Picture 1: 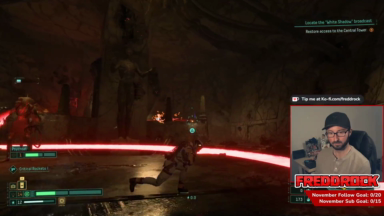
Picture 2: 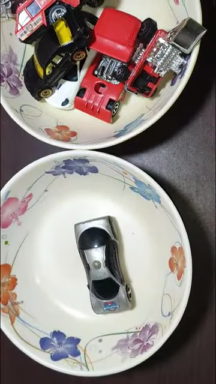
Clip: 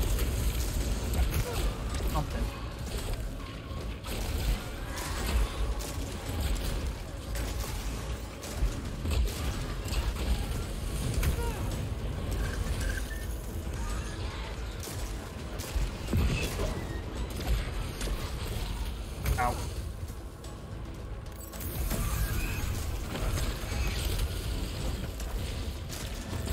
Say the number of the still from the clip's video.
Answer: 1